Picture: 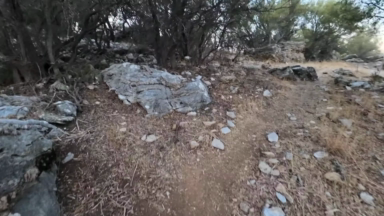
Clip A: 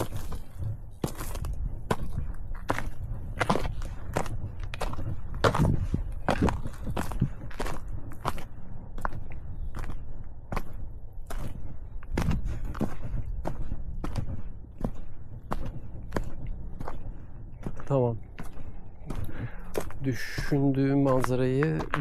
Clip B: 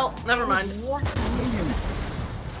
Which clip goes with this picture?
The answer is A